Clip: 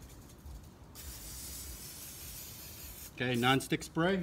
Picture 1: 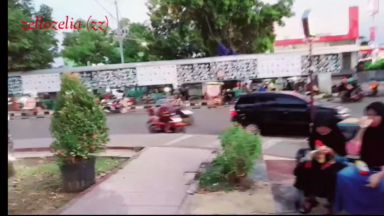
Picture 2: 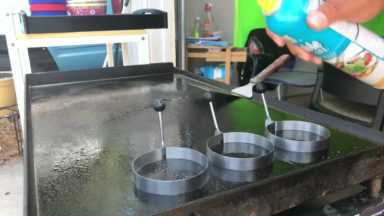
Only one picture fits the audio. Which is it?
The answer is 2